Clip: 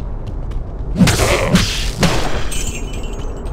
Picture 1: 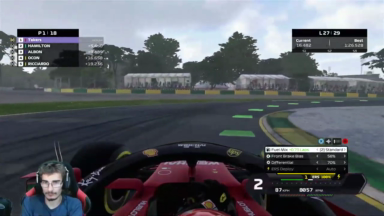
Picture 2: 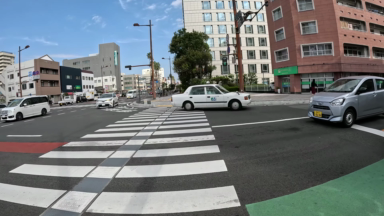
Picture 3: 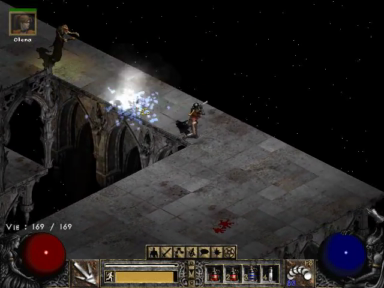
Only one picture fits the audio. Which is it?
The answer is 3